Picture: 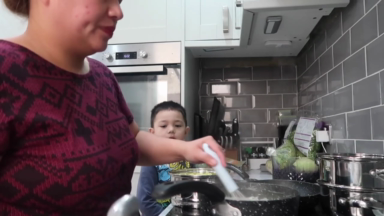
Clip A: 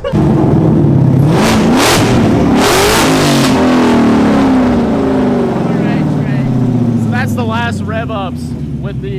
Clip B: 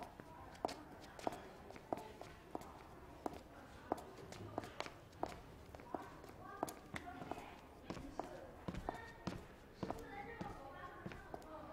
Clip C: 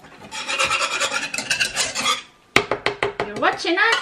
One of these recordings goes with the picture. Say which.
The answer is C